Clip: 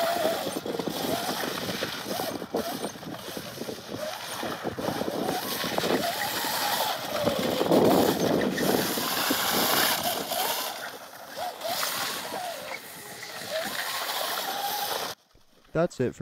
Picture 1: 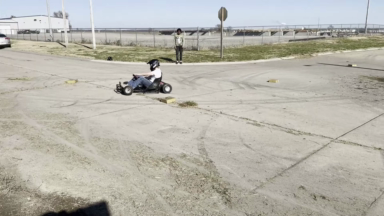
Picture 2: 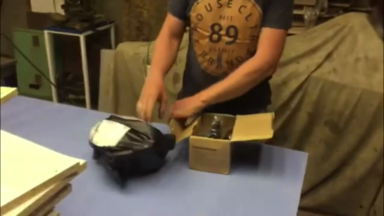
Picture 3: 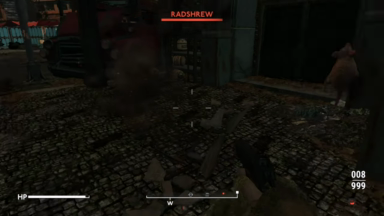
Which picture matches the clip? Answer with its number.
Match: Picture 1